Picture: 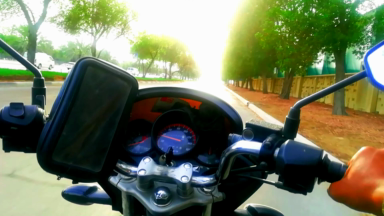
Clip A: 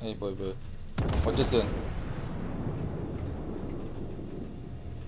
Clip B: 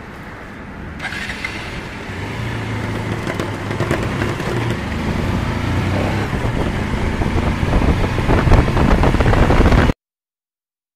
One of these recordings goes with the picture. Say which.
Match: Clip B